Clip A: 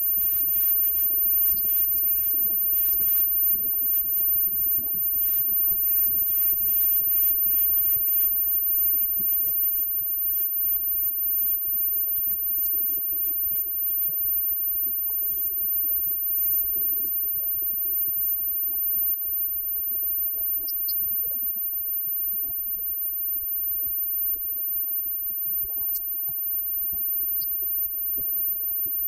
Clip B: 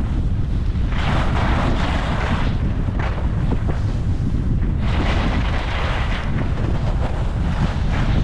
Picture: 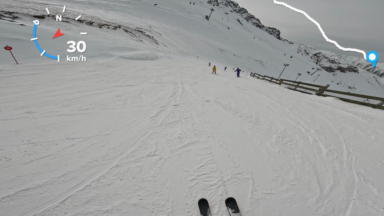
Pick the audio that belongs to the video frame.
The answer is B